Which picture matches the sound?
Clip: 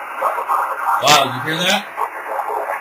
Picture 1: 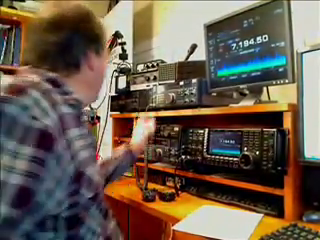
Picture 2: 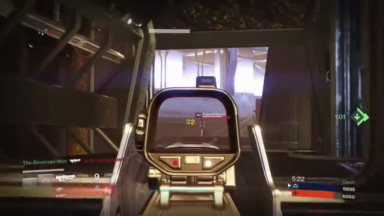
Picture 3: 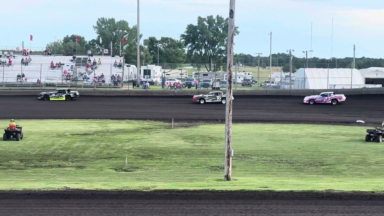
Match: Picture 1